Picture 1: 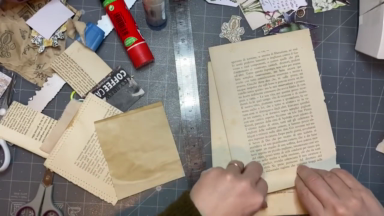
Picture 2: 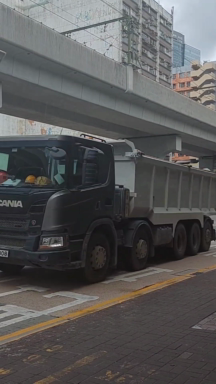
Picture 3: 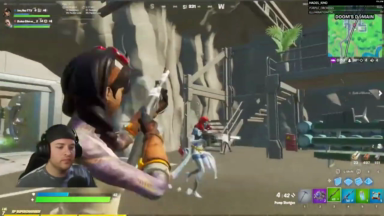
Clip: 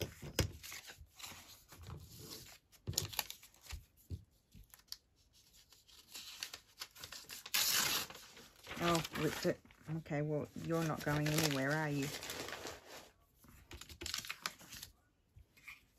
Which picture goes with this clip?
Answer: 1